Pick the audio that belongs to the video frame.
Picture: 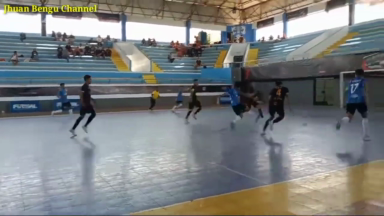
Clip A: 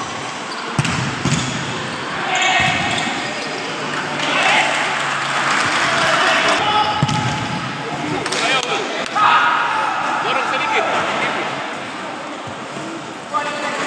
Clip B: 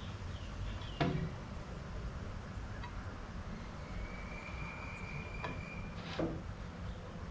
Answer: A